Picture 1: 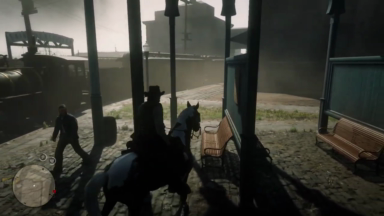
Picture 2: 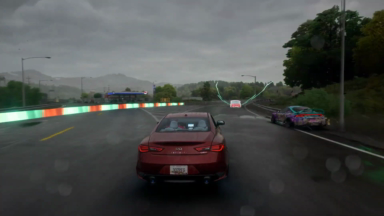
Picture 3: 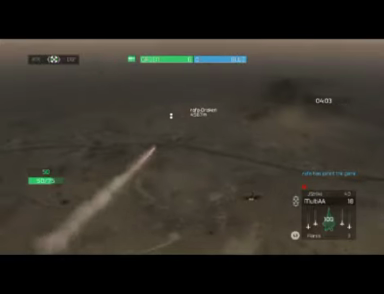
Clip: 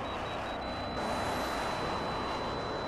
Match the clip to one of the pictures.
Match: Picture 3